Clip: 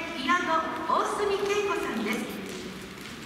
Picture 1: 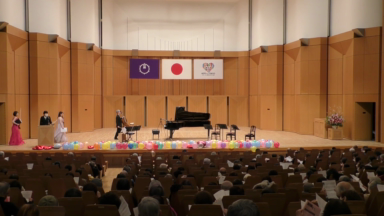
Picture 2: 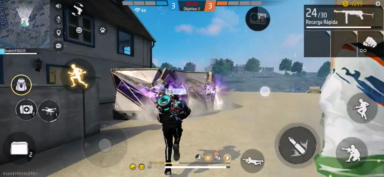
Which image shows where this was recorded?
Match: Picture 1